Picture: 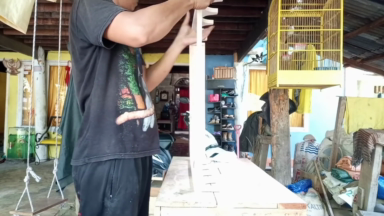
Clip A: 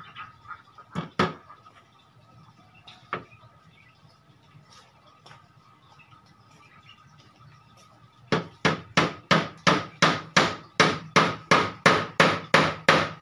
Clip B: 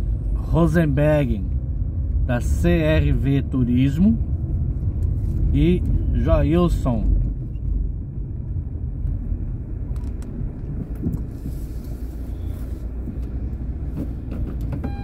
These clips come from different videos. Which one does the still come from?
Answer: A